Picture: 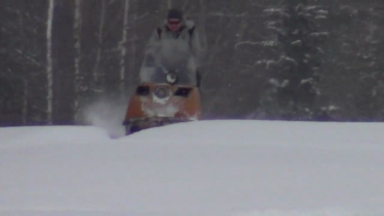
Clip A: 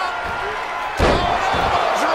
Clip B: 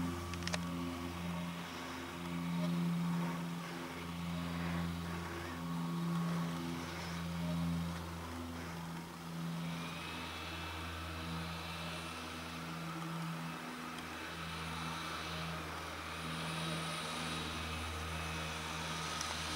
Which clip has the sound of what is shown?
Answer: B